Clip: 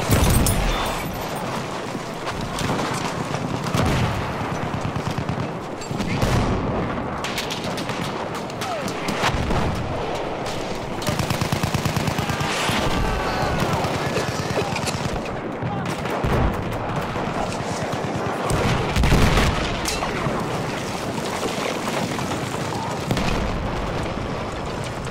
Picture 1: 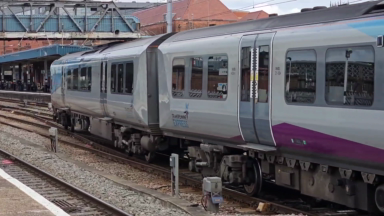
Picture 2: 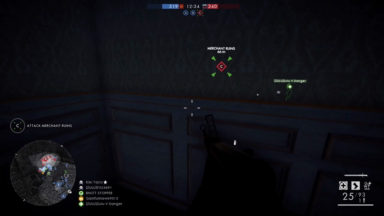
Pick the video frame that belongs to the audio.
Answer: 2